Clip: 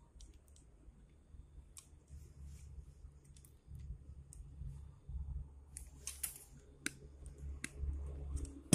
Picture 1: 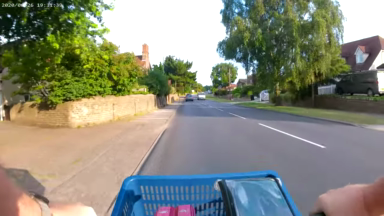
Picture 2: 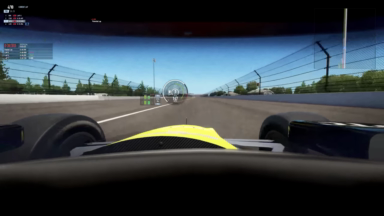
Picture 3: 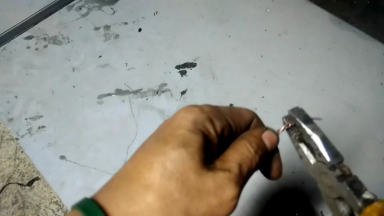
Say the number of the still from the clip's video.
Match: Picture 3